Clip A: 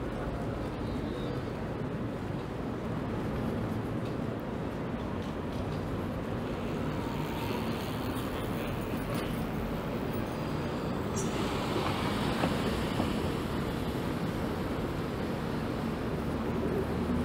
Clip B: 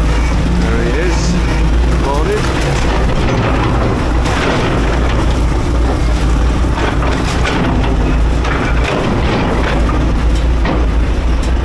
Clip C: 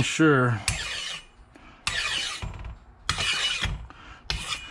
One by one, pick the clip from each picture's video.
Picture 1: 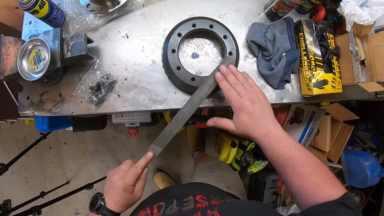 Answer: C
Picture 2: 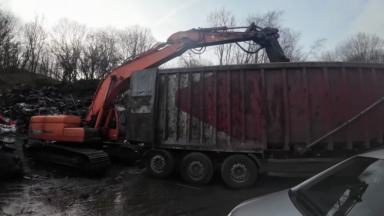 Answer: B